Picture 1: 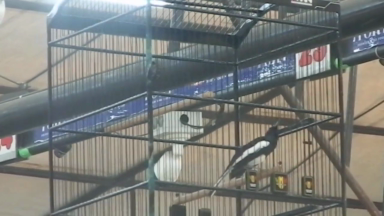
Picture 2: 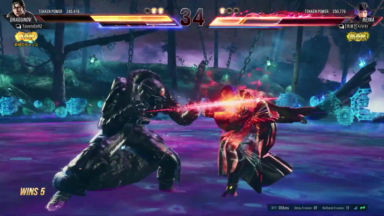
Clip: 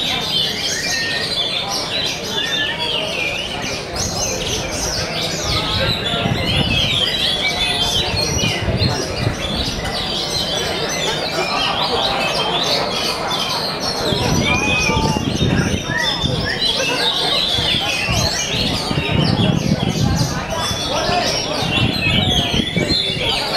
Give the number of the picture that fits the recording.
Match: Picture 1